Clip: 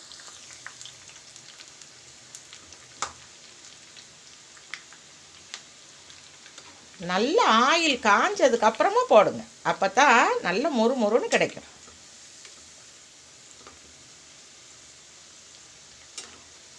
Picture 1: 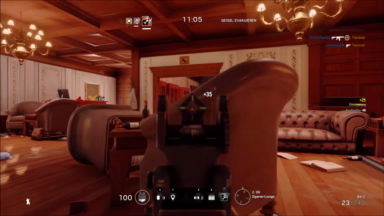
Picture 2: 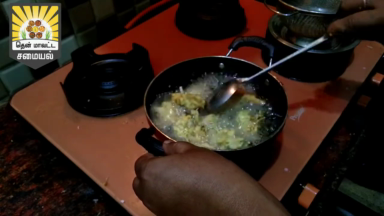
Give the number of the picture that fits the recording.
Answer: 2